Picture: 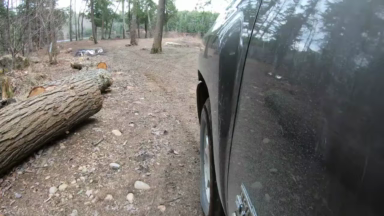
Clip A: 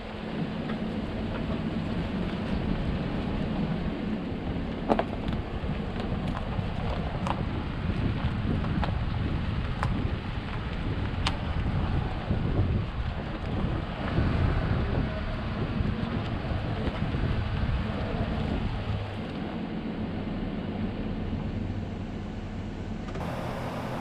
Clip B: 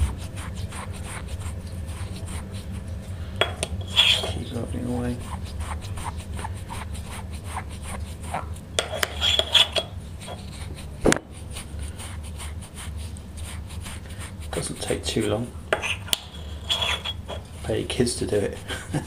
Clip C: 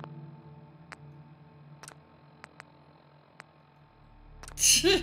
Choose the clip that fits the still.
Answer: A